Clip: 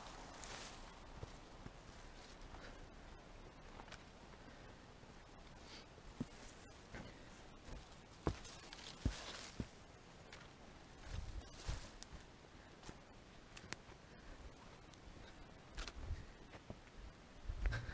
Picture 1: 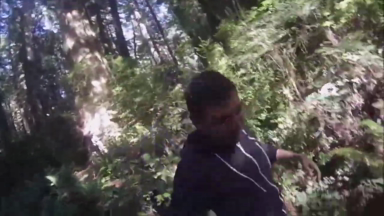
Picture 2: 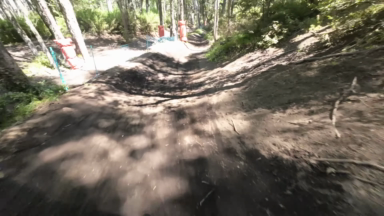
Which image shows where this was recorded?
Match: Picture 1